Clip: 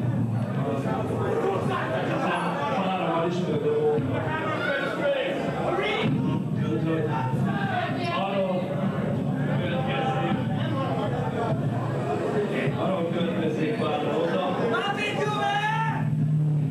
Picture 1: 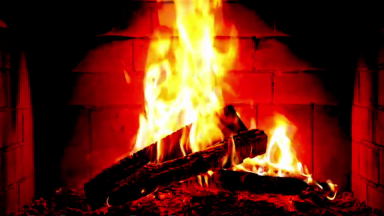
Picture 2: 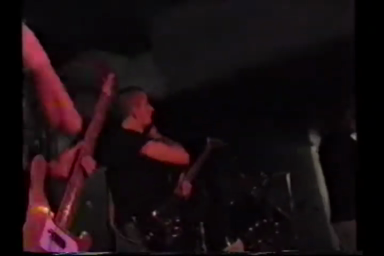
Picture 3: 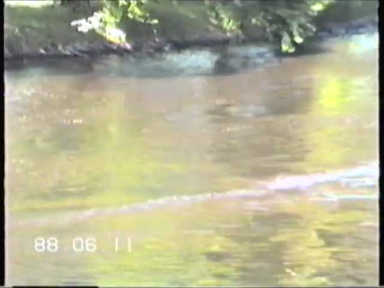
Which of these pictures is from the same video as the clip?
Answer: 2